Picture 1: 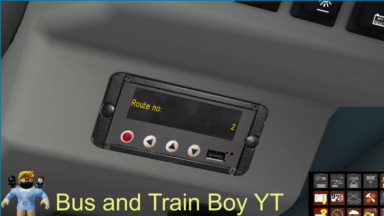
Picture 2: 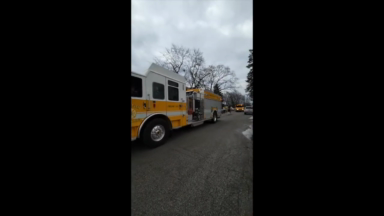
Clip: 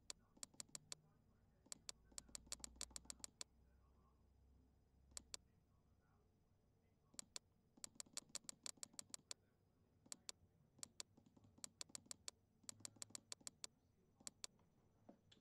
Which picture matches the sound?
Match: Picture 1